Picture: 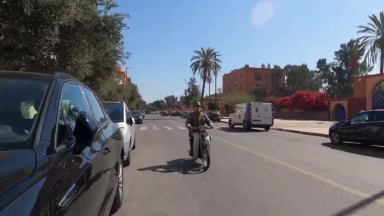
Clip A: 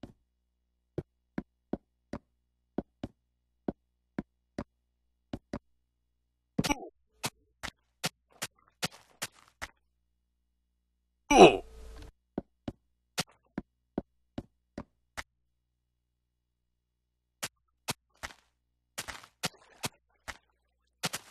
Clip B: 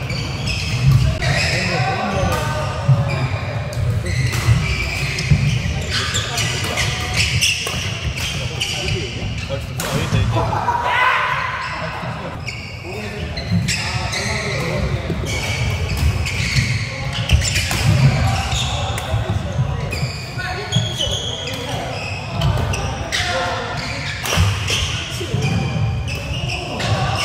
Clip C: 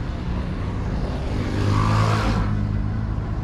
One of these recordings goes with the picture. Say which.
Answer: C